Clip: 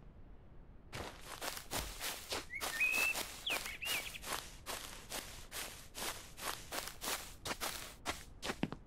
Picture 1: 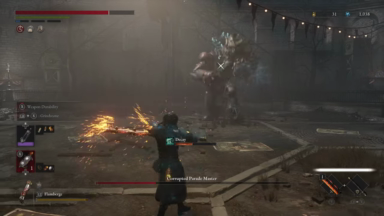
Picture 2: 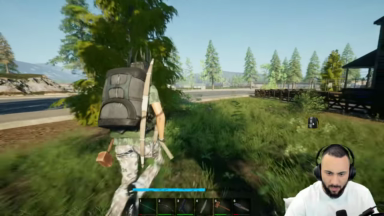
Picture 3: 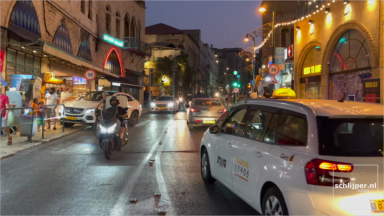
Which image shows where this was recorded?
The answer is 2